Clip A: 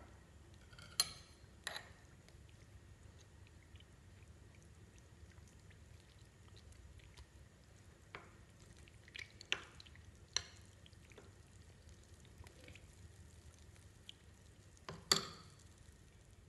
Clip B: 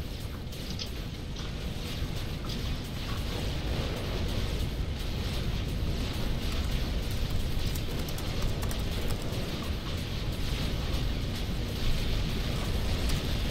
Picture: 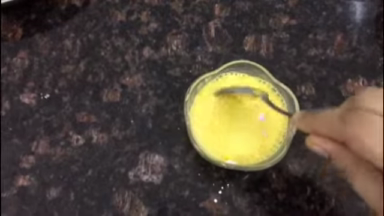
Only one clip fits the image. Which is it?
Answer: A